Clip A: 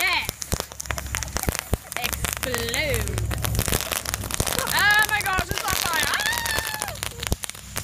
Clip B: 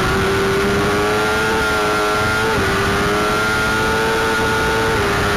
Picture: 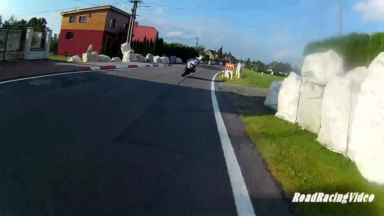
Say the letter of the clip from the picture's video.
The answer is B